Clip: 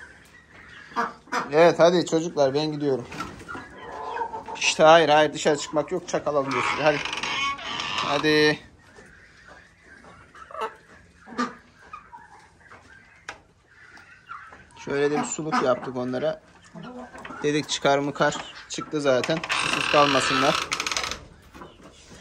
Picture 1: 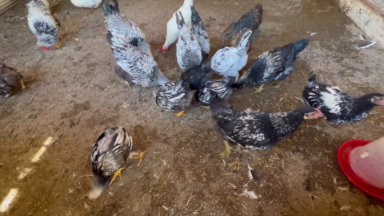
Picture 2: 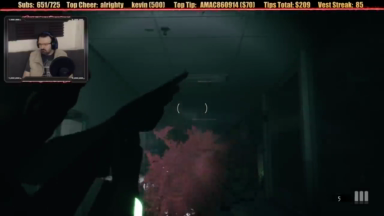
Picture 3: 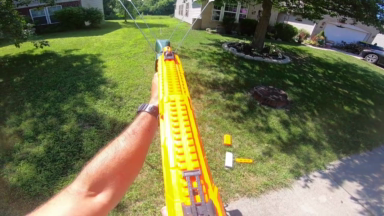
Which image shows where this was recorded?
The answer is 1